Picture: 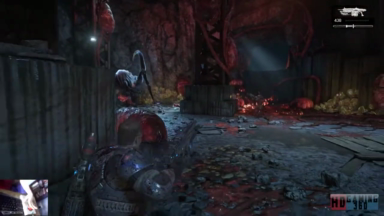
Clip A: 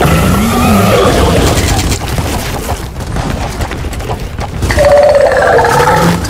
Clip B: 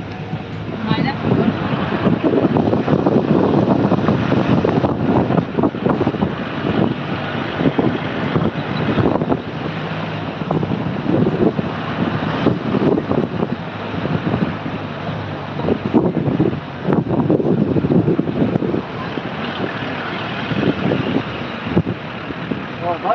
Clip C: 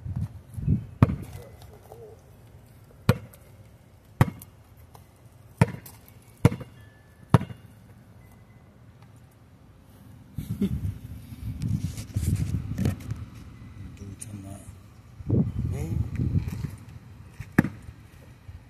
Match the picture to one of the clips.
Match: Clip A